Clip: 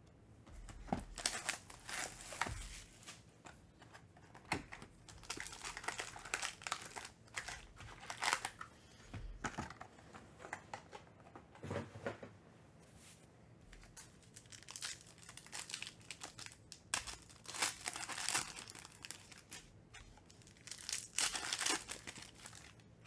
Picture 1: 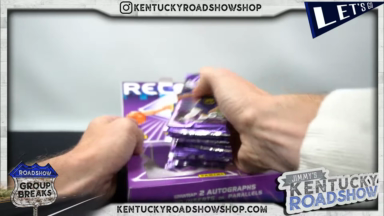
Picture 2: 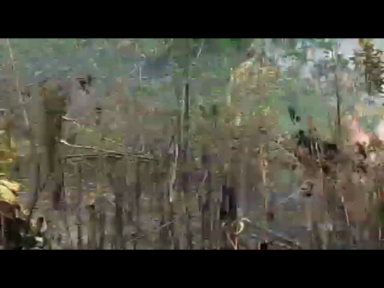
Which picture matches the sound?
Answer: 1